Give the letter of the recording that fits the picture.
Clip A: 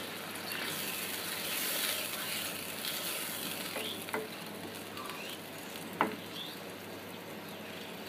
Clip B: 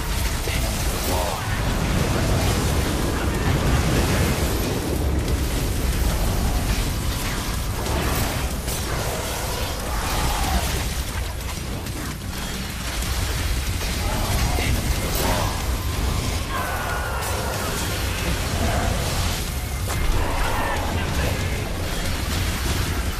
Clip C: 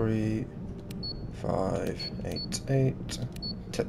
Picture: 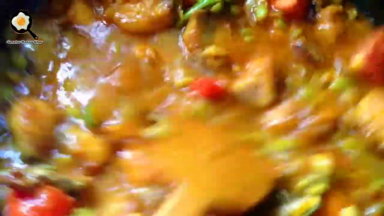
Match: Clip A